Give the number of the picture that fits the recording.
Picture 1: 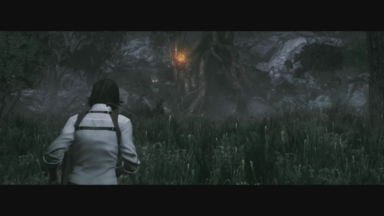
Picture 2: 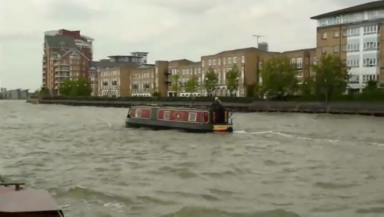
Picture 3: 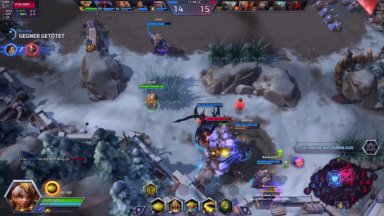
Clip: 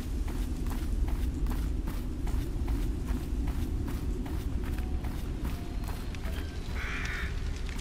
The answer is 1